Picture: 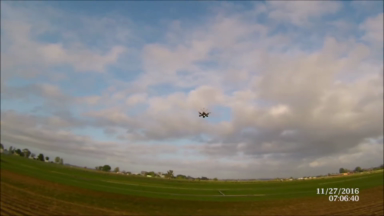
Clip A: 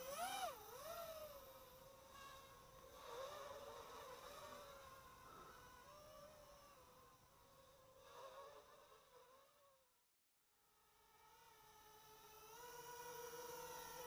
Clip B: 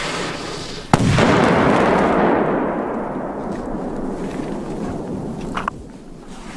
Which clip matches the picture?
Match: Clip A